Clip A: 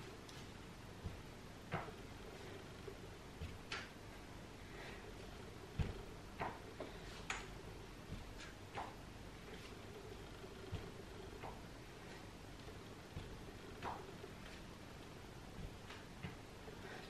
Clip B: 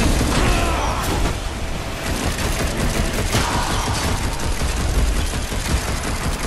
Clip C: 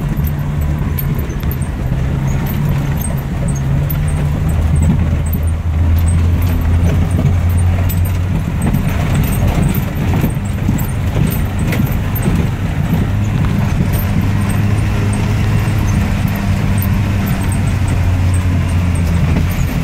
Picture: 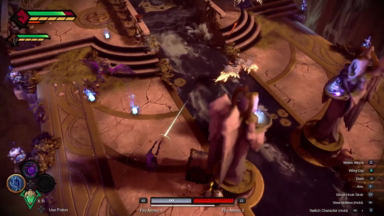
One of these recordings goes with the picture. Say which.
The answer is B